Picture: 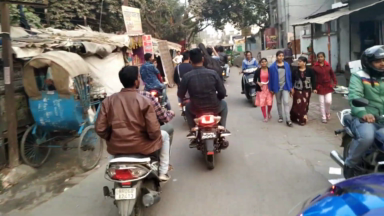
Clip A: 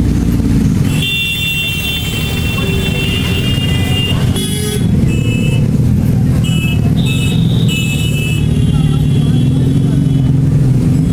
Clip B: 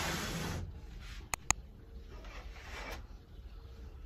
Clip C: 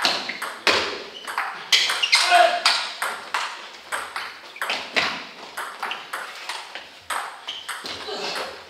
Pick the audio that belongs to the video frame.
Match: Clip A